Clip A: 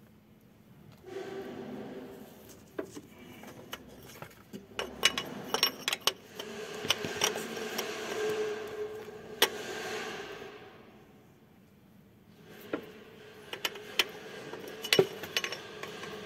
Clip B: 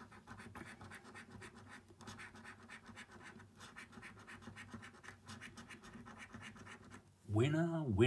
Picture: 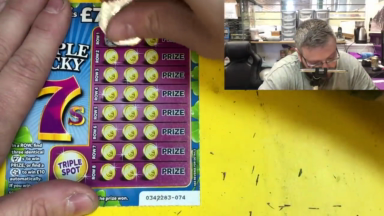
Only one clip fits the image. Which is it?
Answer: B